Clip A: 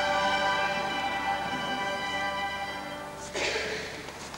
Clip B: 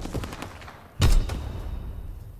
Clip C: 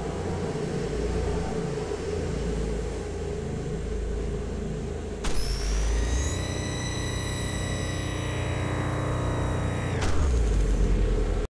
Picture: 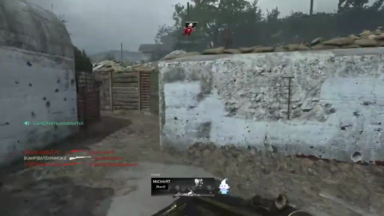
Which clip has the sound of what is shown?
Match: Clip B